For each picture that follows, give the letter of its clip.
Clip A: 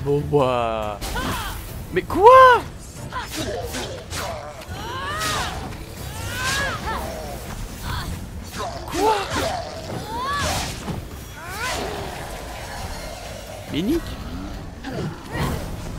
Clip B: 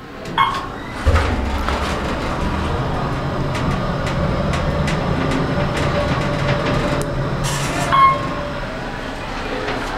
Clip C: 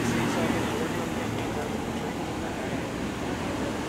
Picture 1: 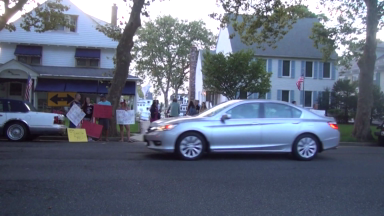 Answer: C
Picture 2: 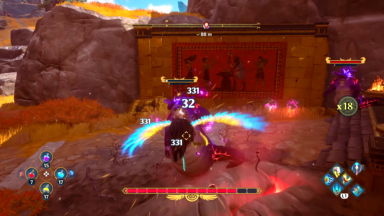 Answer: A